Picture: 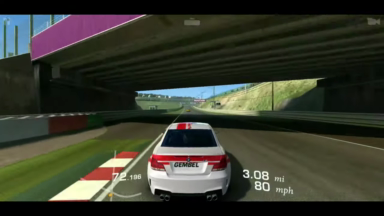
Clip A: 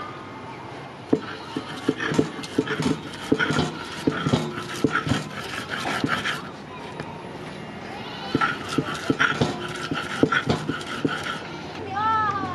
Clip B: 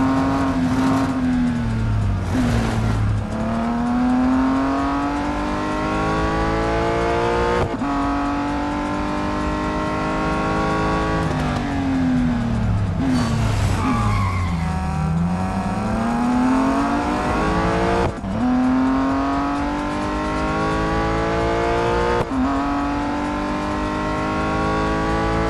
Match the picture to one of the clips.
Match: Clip B